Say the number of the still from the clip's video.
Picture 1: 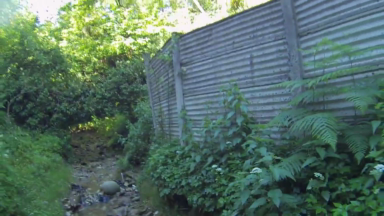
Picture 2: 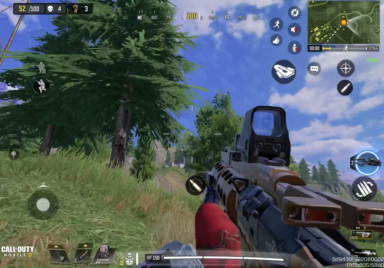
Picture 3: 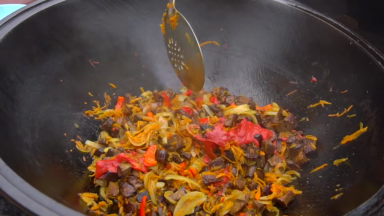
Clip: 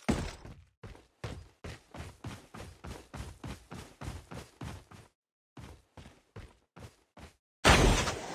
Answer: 2